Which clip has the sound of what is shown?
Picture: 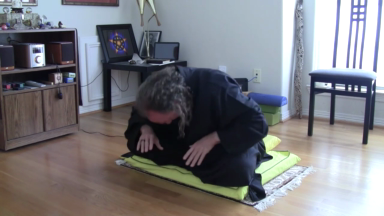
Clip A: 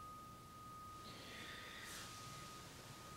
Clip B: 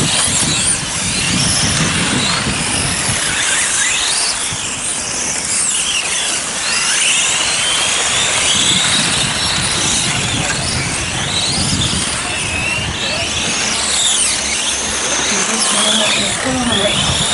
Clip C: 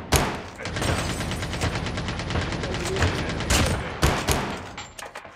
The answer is A